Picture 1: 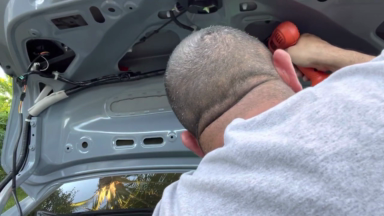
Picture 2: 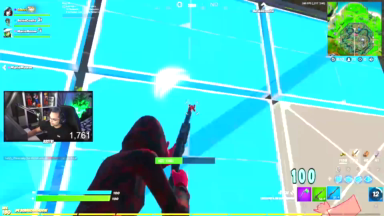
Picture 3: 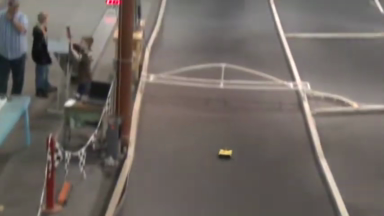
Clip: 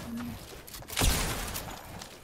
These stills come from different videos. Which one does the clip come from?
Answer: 2